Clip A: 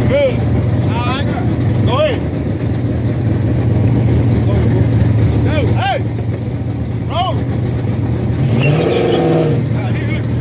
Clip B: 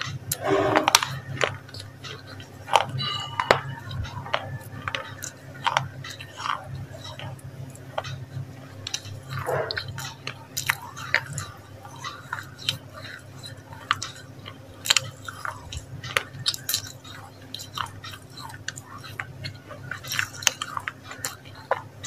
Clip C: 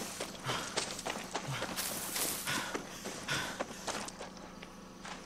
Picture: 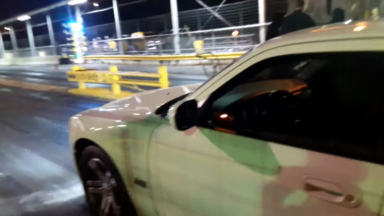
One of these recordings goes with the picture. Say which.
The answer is A